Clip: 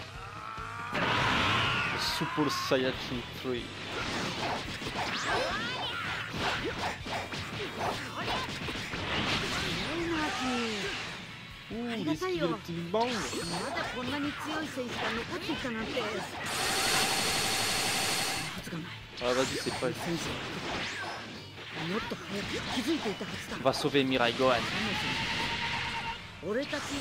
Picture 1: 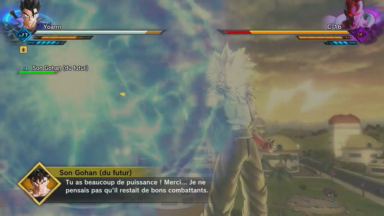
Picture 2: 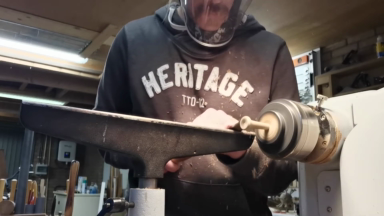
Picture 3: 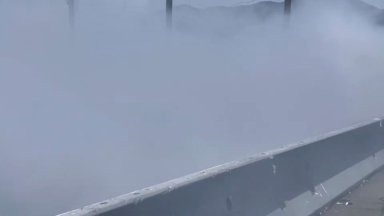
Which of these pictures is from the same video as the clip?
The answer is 1